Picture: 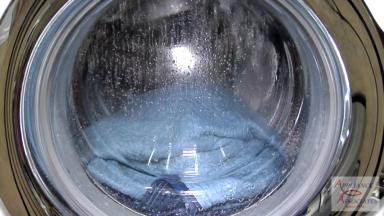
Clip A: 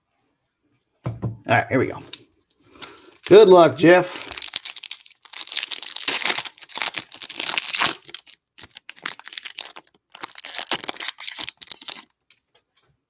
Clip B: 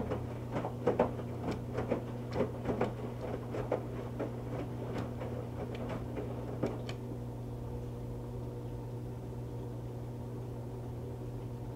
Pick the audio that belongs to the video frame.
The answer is B